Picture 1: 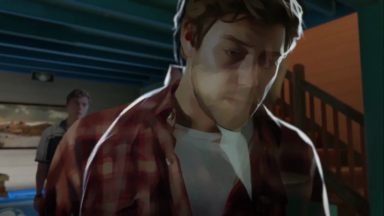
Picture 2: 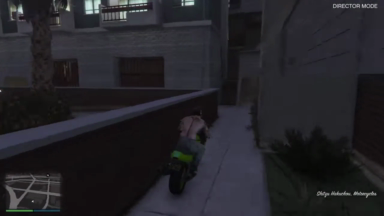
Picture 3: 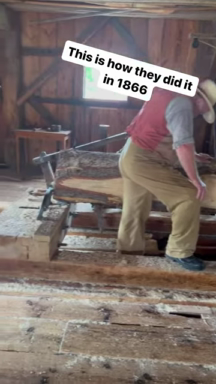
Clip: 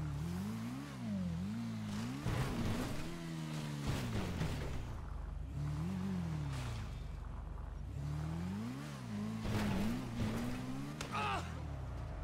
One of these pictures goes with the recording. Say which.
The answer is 2